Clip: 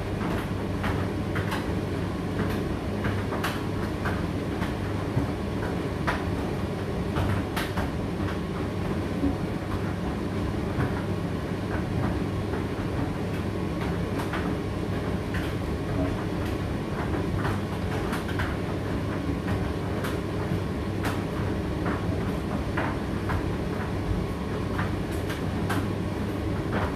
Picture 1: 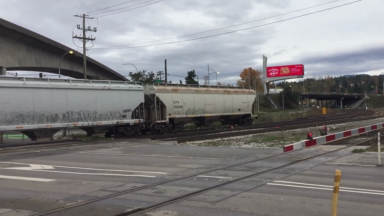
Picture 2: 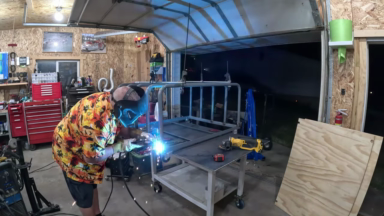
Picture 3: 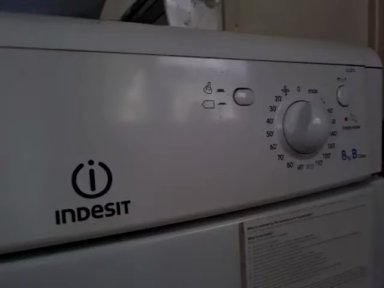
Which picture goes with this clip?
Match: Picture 3